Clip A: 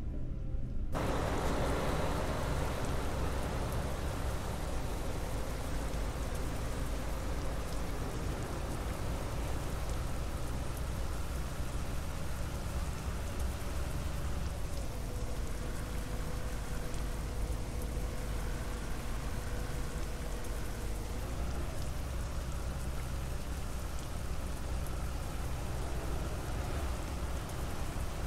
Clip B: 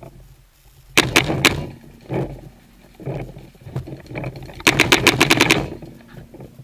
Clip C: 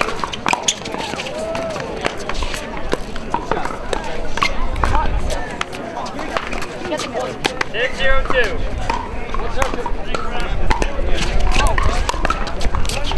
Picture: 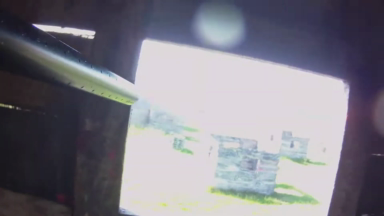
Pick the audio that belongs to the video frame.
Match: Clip B